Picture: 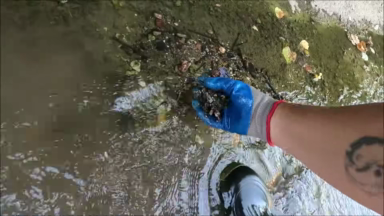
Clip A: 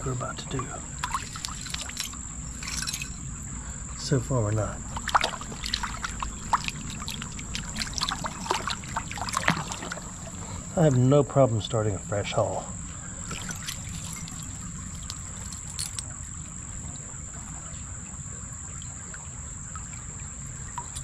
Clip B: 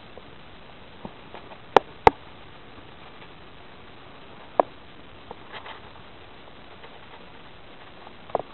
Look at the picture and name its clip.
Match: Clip A